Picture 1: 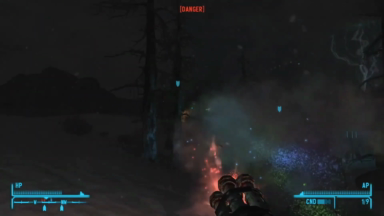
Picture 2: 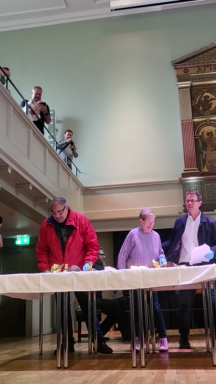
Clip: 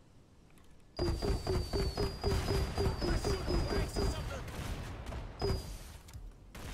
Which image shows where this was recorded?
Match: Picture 1